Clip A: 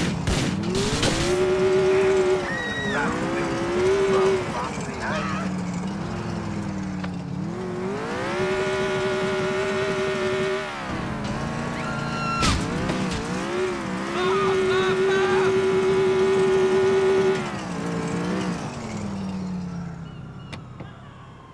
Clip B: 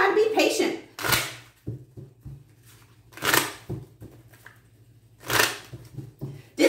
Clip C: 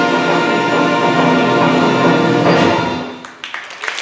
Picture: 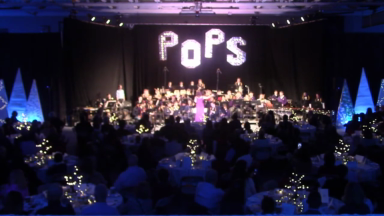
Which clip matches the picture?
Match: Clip C